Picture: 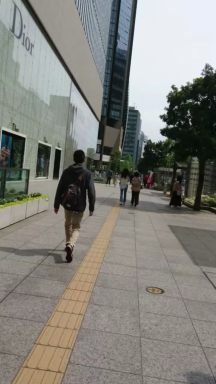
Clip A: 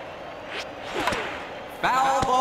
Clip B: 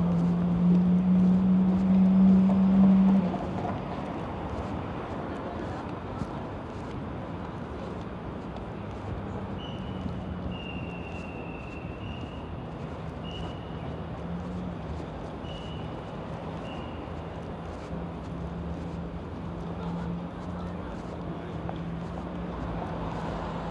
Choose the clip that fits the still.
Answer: B